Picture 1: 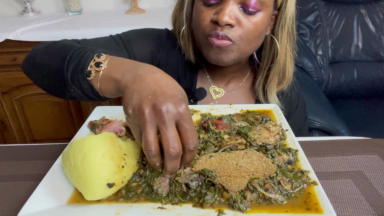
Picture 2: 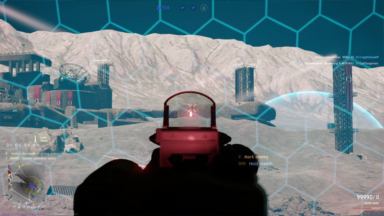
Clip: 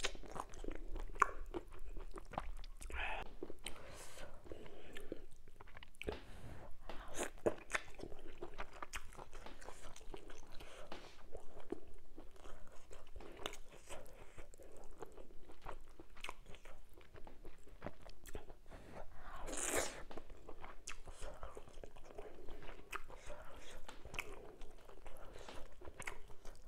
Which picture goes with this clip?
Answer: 1